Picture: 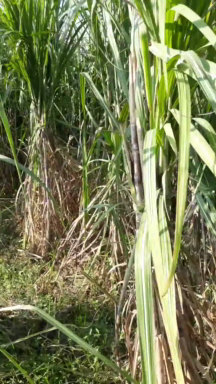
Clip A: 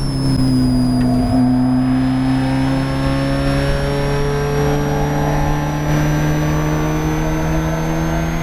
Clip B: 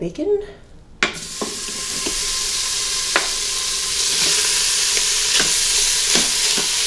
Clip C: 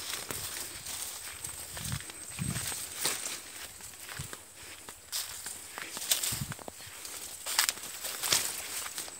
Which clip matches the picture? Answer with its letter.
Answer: C